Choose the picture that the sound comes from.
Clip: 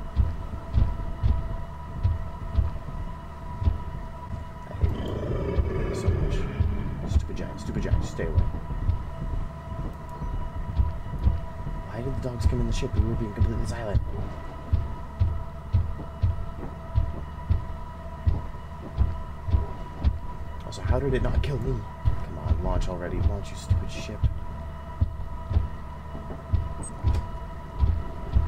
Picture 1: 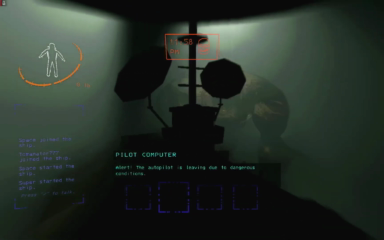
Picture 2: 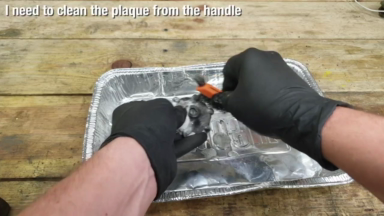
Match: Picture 1